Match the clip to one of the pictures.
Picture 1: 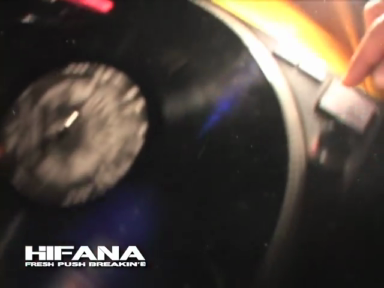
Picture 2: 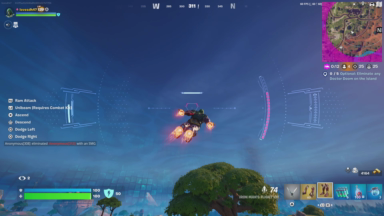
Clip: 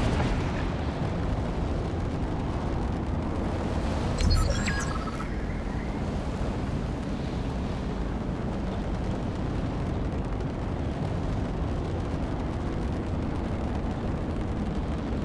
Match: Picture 2